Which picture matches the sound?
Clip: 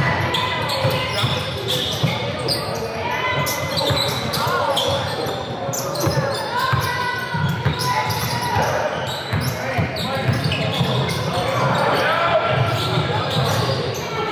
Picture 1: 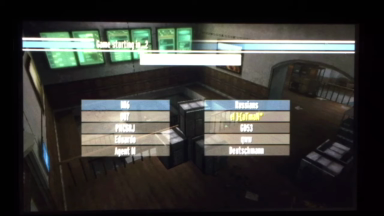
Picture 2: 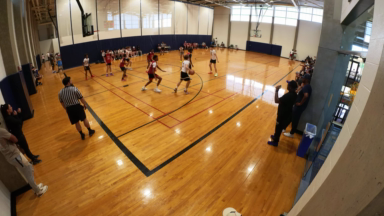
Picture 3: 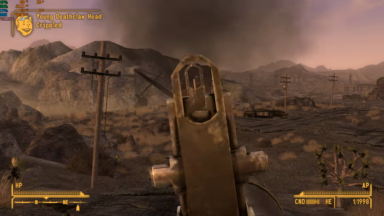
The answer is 2